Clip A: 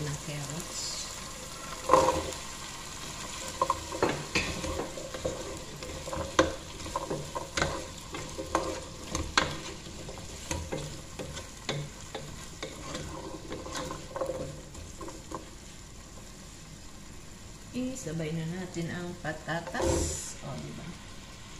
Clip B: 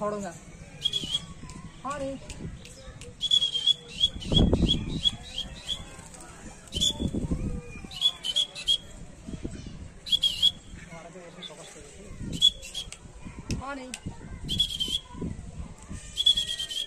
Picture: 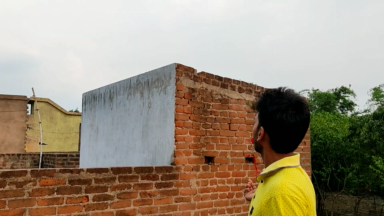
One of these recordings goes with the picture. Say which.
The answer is B